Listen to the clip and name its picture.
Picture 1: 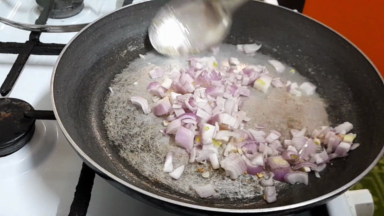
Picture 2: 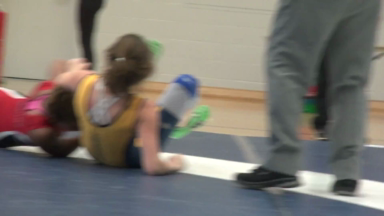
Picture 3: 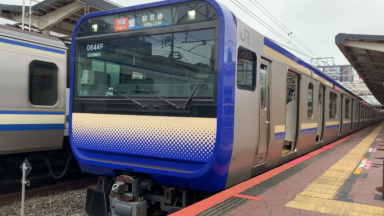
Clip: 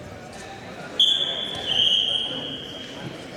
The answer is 2